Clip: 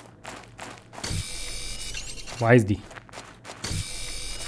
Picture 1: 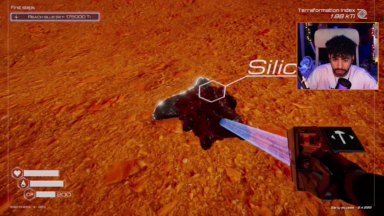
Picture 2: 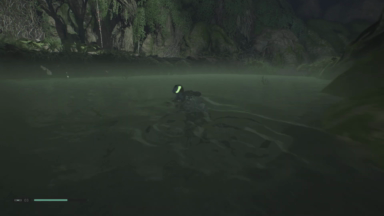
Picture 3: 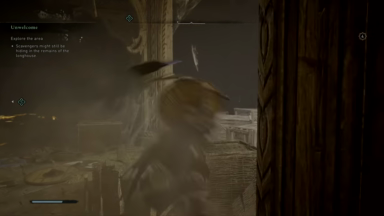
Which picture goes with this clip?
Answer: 1